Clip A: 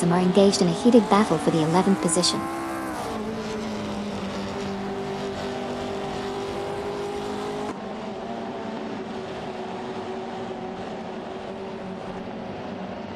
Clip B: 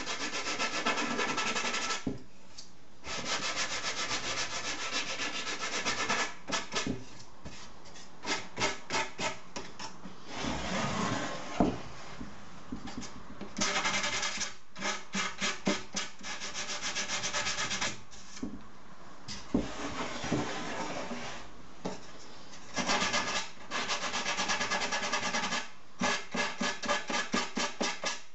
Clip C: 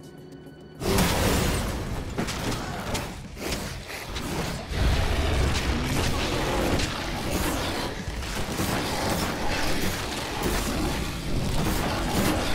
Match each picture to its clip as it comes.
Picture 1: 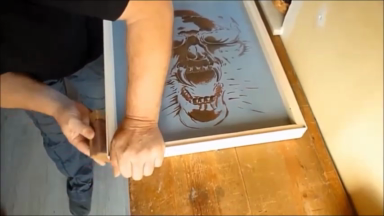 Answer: B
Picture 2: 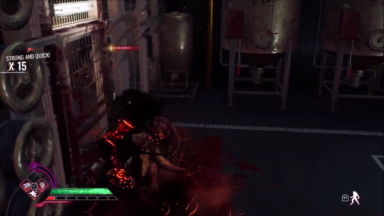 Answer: C